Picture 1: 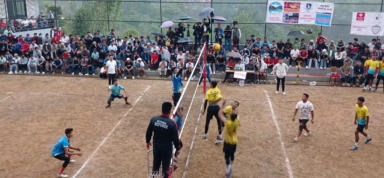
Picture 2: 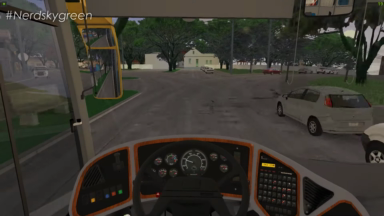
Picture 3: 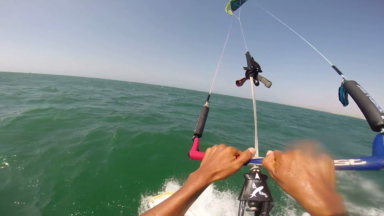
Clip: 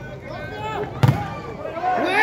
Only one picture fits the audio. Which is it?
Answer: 1